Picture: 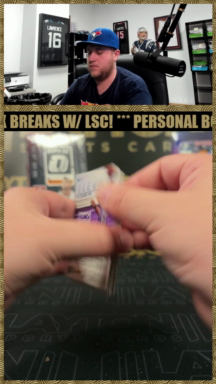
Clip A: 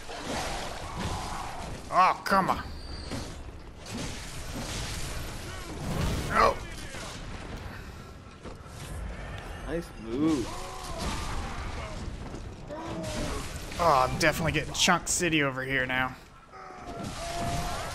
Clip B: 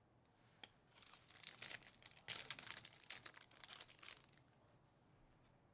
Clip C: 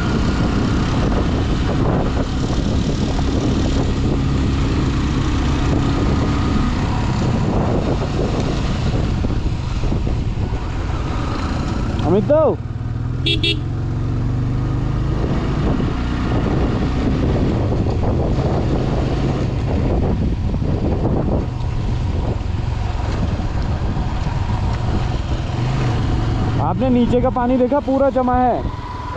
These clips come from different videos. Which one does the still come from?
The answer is B